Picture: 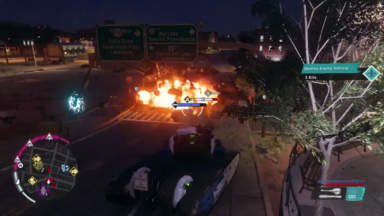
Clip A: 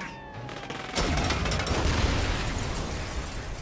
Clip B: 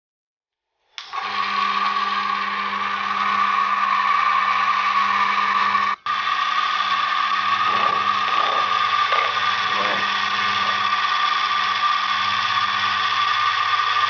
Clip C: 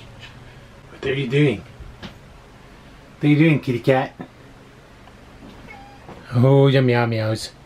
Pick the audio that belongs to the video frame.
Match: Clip A